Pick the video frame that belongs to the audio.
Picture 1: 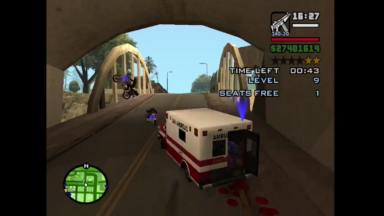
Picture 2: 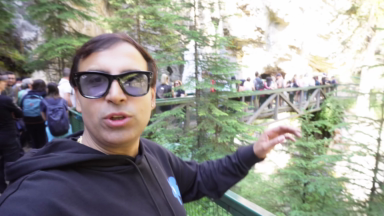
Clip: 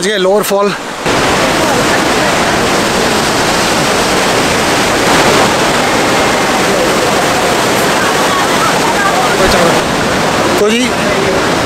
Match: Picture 2